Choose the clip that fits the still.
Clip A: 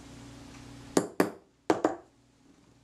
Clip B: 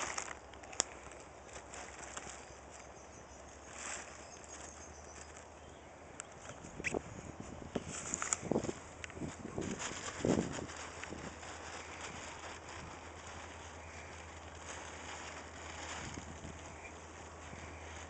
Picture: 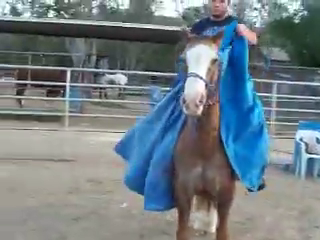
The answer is B